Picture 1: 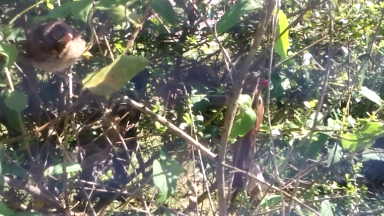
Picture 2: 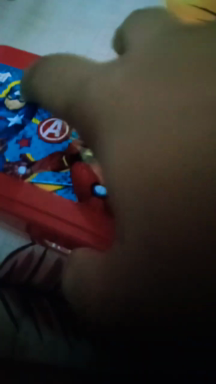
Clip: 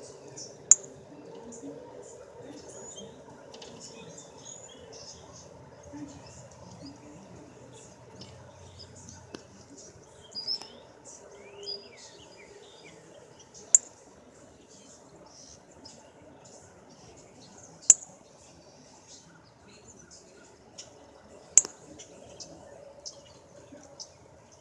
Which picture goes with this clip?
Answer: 1